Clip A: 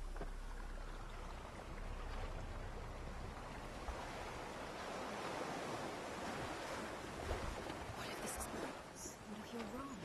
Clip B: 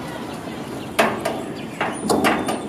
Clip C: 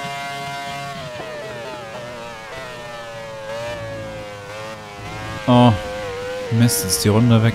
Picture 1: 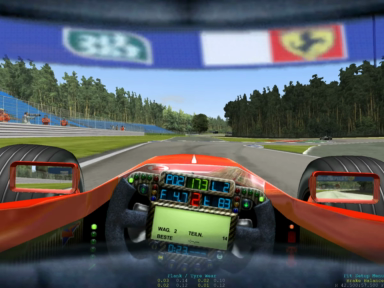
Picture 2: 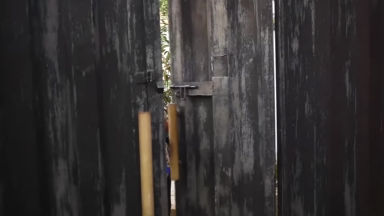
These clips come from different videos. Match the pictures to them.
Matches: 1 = C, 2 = B